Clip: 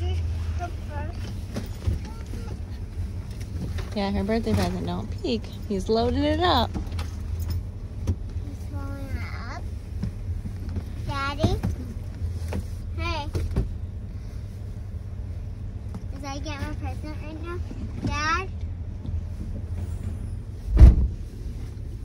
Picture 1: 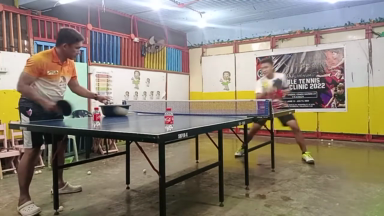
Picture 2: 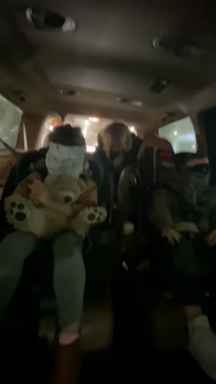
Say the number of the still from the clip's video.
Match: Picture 2